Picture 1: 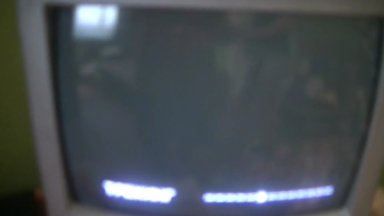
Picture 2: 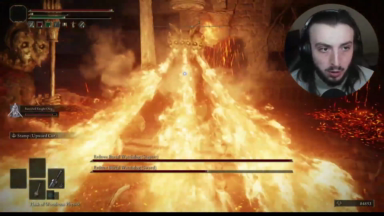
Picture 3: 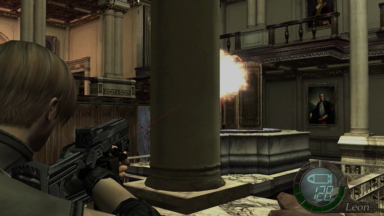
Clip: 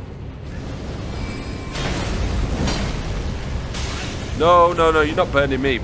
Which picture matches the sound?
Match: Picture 2